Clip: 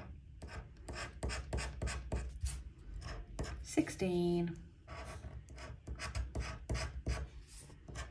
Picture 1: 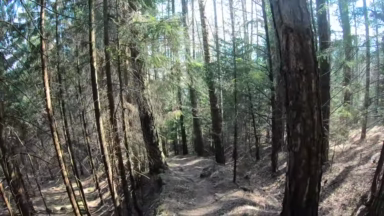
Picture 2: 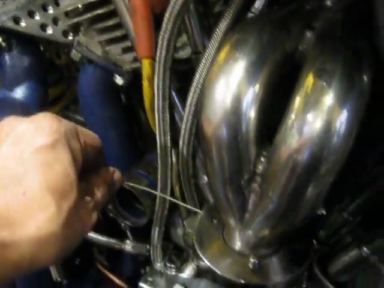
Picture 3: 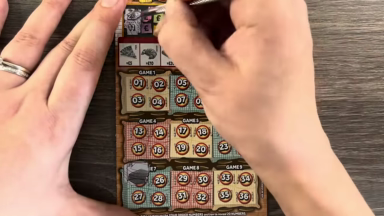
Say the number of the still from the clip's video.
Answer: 3